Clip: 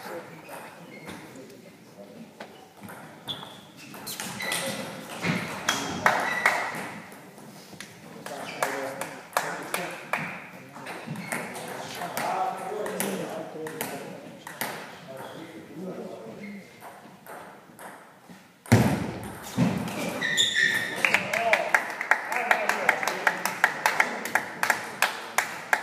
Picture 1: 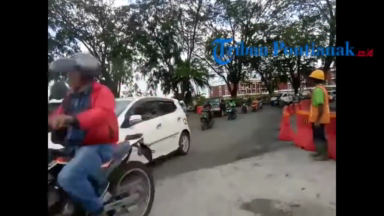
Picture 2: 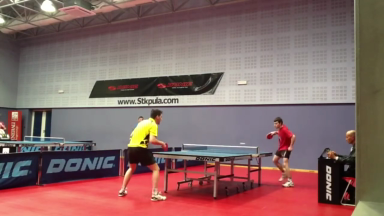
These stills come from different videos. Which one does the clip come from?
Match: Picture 2